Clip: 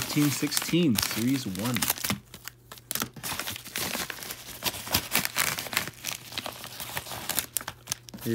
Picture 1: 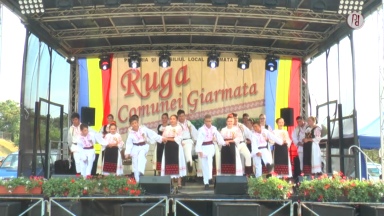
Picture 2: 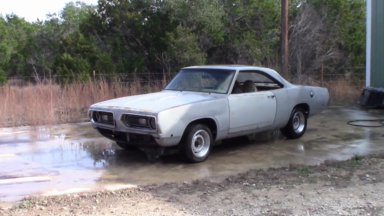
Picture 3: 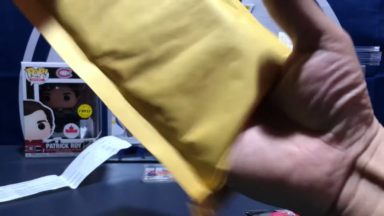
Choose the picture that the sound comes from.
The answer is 3